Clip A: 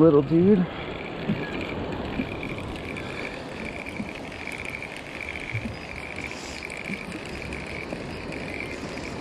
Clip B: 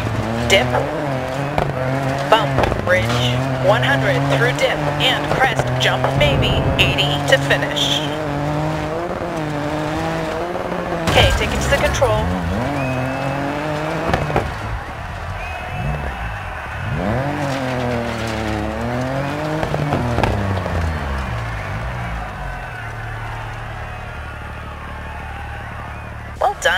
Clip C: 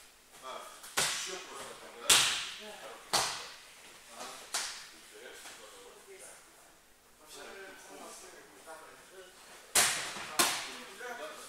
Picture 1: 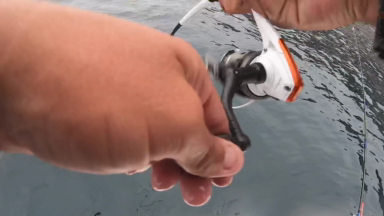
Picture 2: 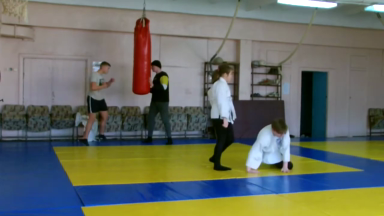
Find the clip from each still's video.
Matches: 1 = A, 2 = C